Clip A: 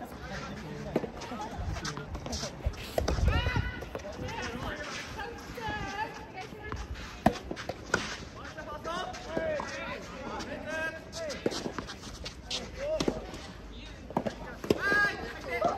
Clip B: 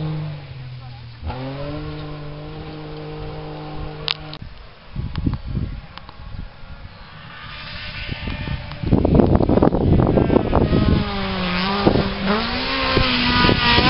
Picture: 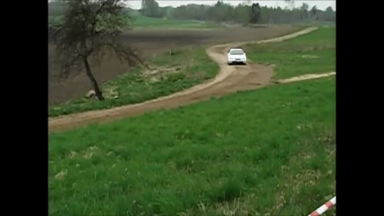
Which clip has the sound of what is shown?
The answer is B